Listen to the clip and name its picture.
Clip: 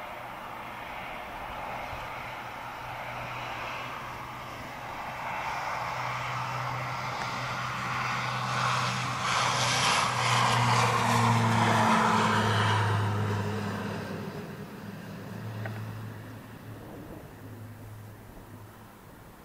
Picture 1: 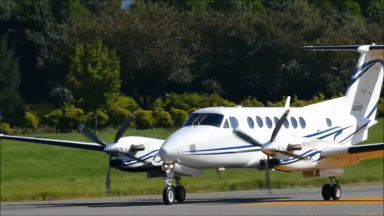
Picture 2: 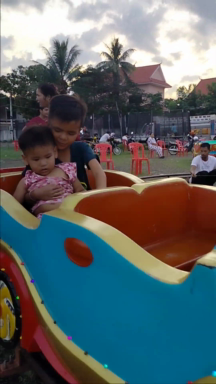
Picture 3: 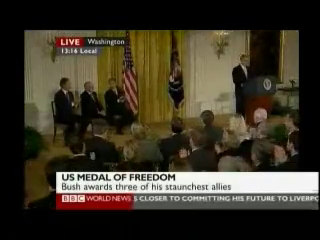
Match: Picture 1